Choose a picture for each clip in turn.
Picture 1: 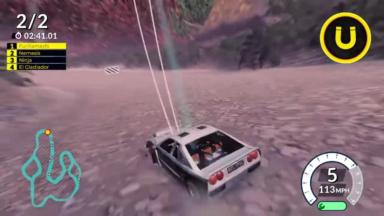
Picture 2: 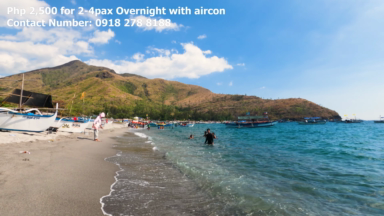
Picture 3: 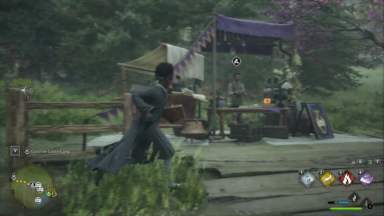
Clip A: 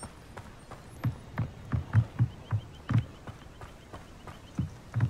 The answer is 3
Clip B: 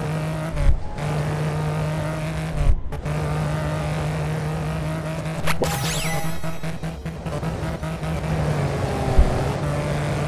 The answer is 1